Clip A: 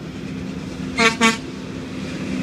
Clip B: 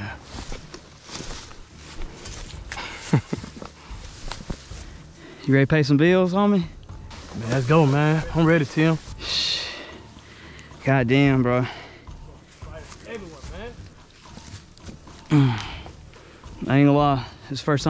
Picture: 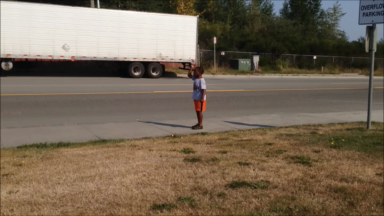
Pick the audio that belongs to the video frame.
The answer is A